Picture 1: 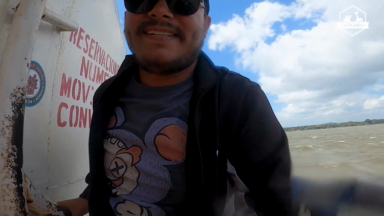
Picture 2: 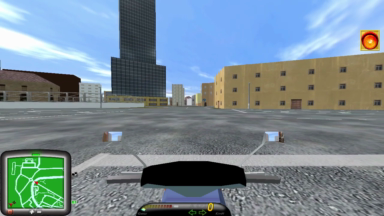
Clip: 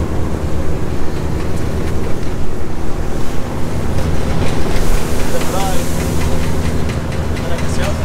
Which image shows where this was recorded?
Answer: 1